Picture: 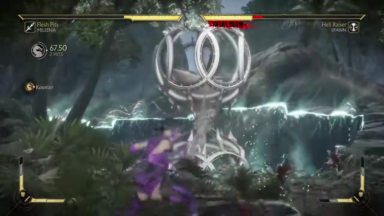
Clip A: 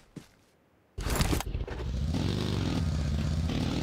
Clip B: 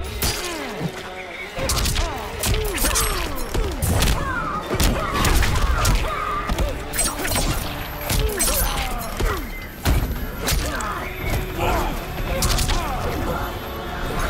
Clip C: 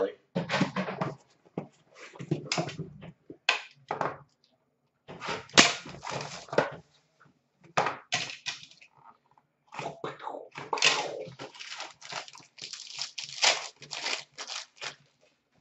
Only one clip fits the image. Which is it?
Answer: B